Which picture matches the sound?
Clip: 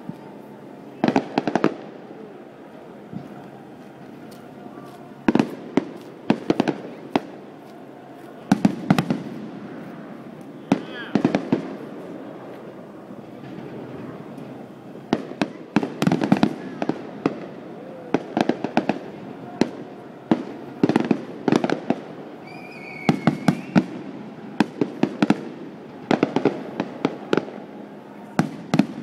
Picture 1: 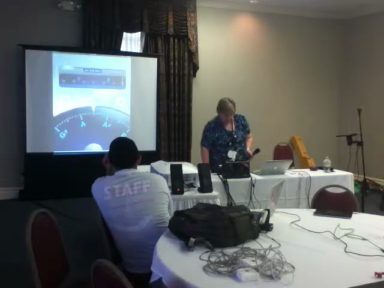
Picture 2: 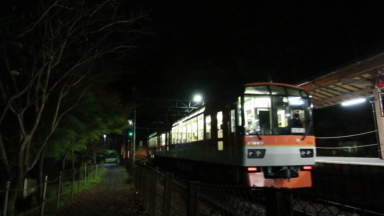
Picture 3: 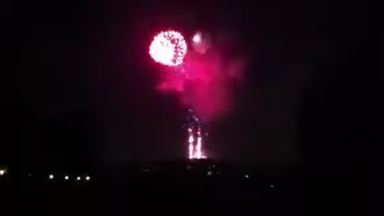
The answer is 3